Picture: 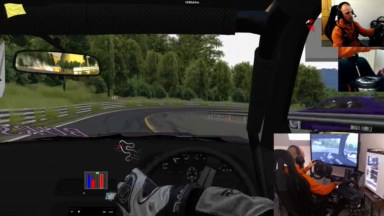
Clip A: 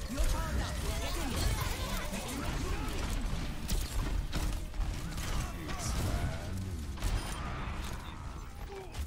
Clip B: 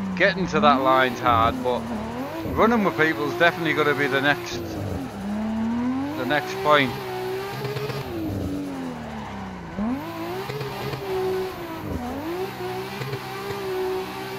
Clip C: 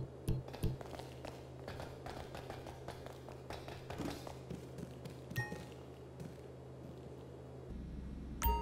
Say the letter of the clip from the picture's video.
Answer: B